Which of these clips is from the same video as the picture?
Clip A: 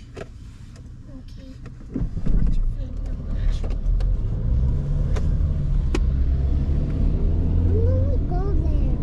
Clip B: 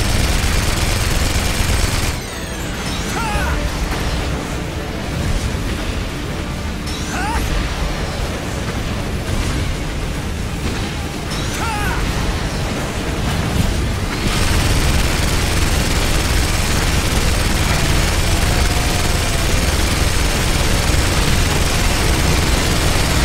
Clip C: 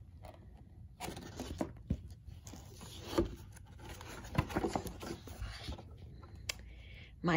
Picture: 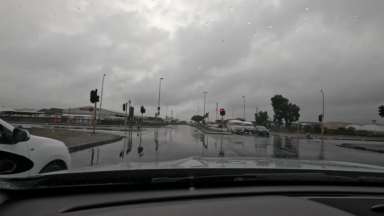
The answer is A